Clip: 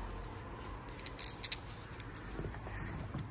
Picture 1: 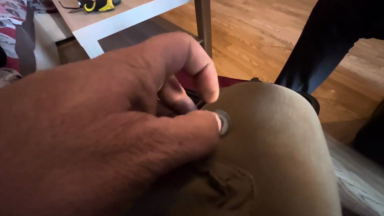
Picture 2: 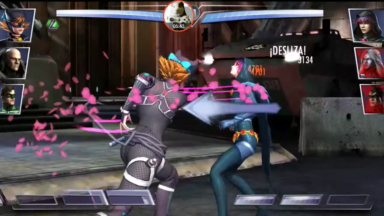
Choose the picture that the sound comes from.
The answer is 1